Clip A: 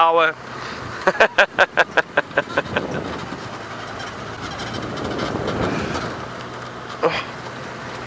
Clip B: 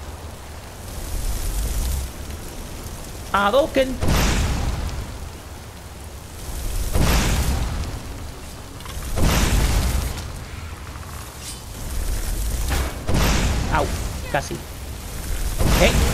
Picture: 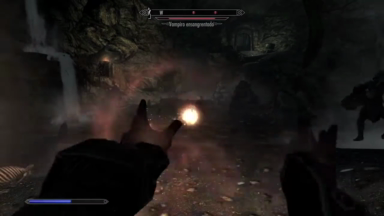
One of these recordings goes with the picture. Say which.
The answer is B